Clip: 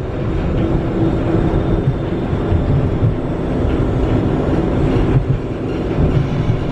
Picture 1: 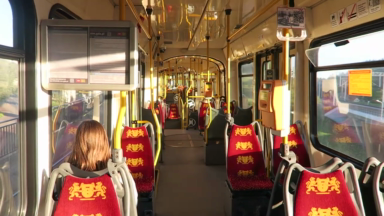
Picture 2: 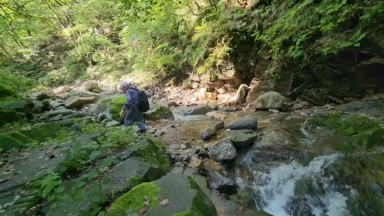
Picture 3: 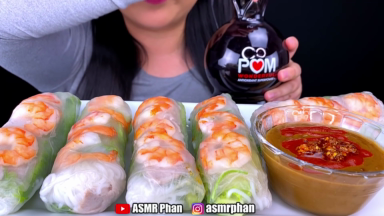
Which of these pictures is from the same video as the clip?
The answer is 1